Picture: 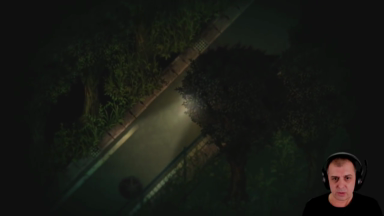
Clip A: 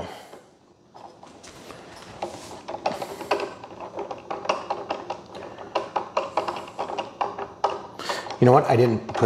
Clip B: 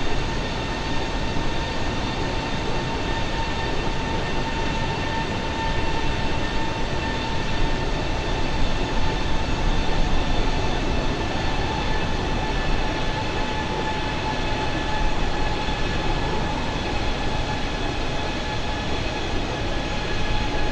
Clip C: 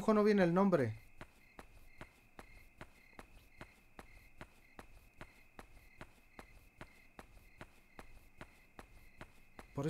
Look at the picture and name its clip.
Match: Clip C